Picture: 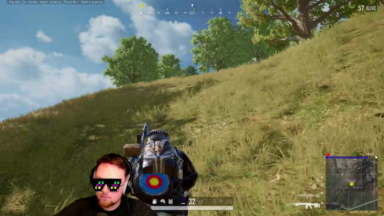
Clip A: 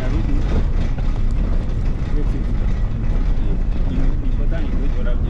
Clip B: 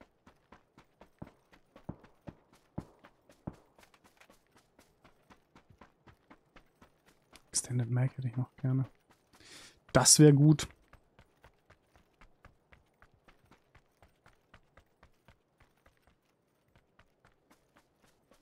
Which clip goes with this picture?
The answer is B